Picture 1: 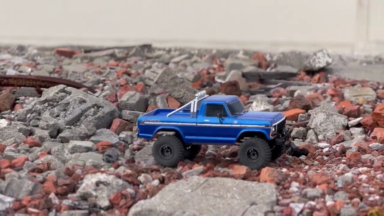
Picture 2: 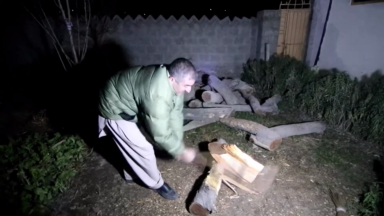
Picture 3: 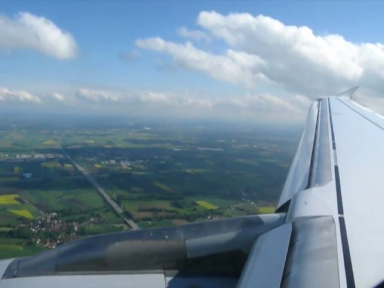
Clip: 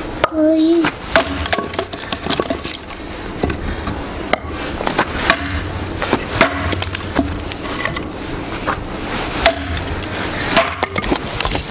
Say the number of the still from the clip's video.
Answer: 2